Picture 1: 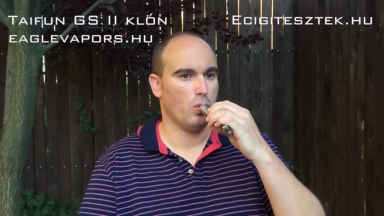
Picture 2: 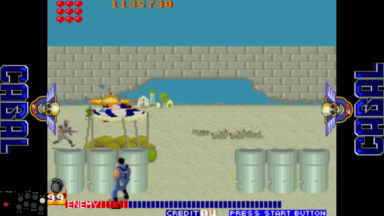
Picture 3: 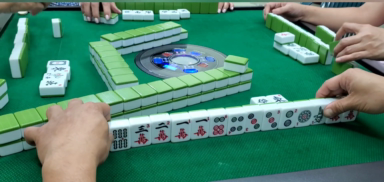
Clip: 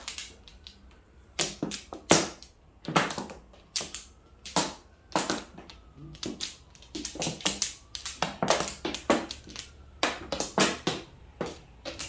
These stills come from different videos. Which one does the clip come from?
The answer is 3